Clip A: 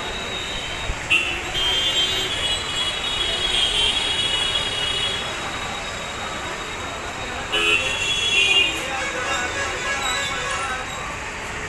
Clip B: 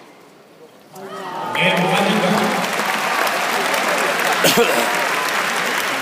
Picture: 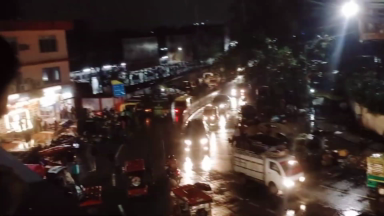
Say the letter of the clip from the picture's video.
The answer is A